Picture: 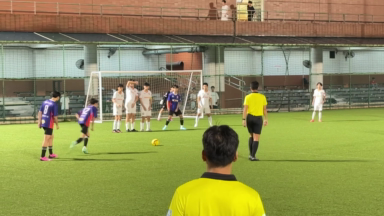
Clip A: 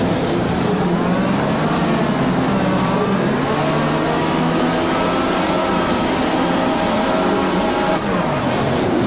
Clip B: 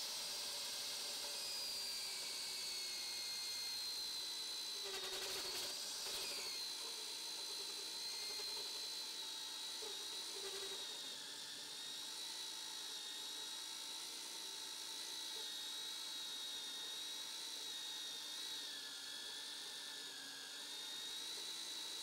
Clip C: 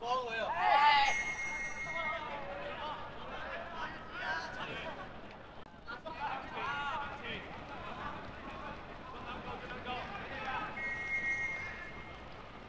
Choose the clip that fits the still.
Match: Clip C